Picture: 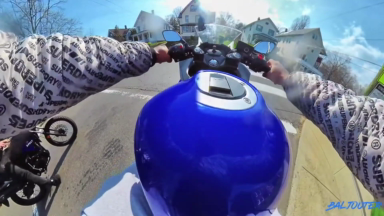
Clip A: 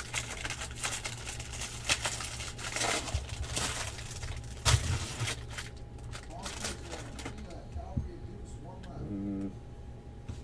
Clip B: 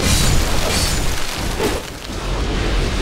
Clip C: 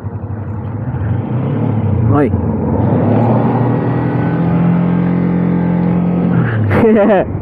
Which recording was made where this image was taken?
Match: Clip C